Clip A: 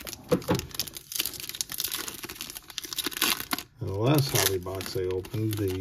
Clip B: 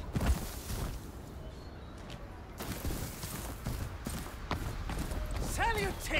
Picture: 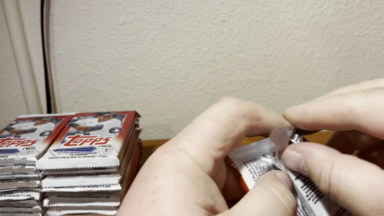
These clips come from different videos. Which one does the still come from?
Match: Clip A